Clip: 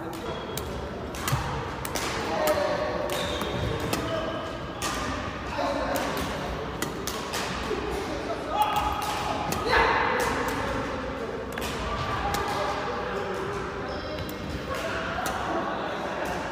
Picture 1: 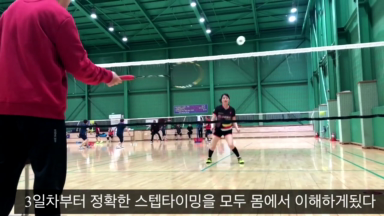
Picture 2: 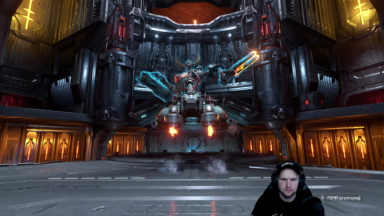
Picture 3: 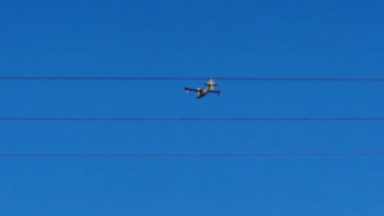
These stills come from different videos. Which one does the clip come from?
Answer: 1